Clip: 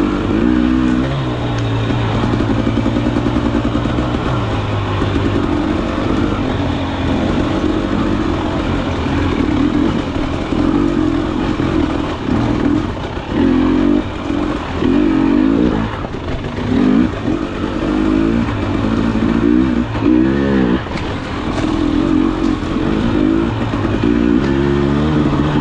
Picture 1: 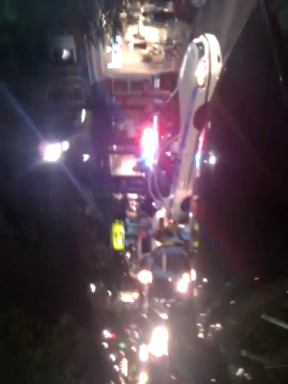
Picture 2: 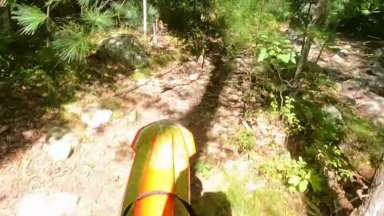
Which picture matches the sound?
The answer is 2